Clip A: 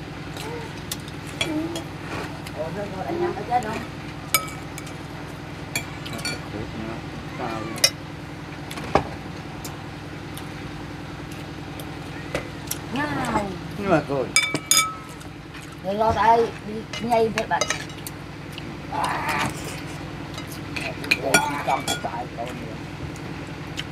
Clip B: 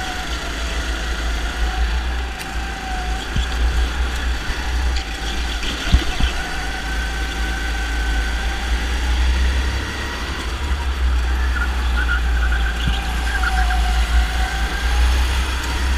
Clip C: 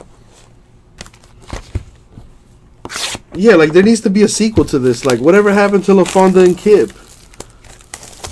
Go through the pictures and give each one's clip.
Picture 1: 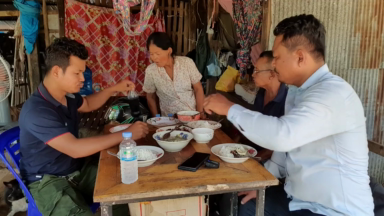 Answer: A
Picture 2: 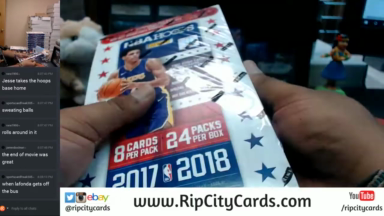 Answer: C